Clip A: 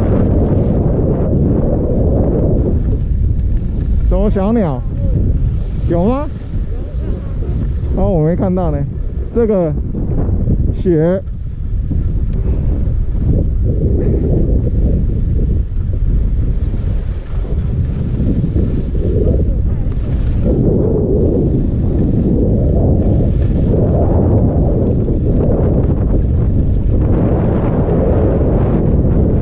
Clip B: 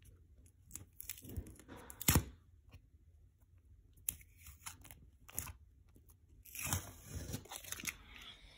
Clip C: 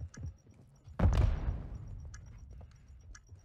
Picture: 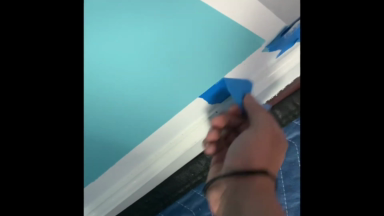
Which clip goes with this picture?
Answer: B